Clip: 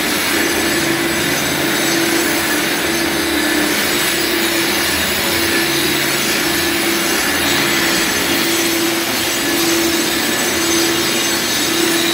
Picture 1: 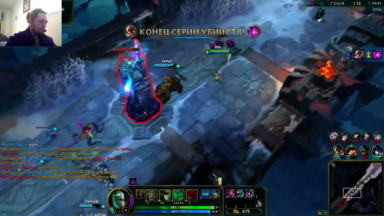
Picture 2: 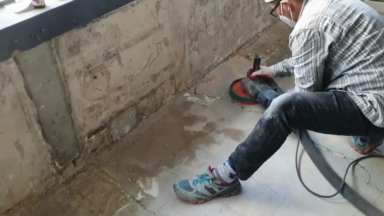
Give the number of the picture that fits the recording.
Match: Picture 2